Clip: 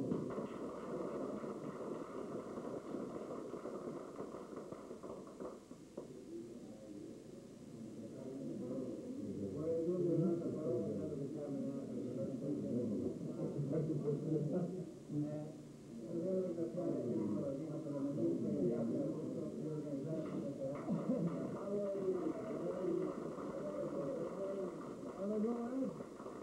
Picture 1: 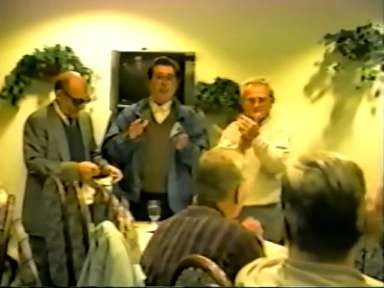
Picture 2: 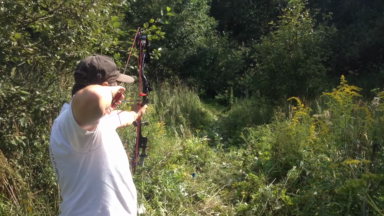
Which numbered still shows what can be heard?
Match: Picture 1